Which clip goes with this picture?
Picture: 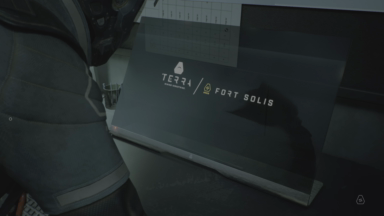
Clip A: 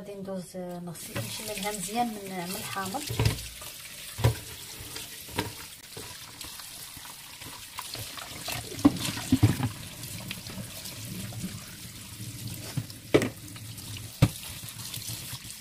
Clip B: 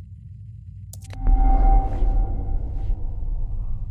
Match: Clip B